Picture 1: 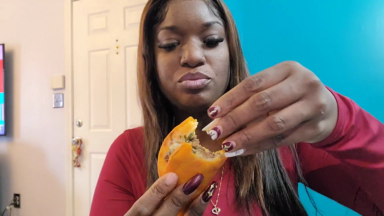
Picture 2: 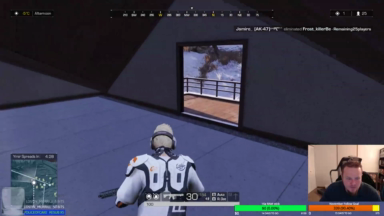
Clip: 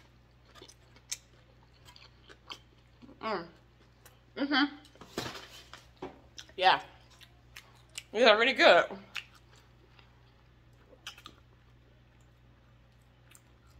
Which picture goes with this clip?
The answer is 1